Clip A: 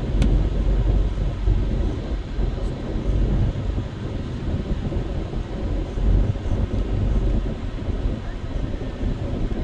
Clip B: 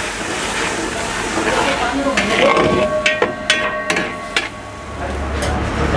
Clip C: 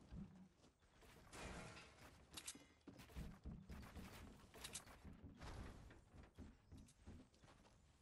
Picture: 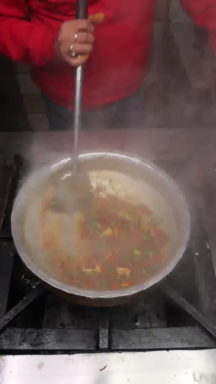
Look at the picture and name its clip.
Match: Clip B